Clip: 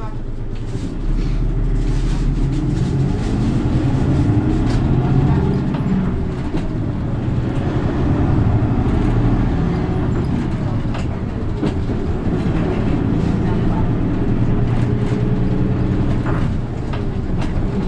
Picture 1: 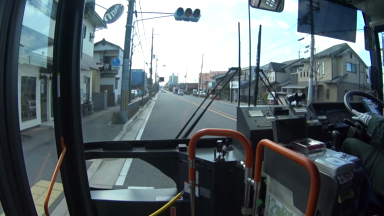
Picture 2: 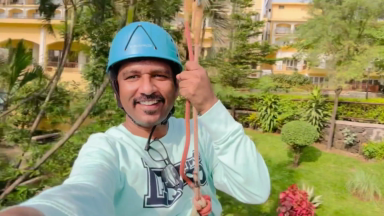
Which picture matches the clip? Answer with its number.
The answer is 1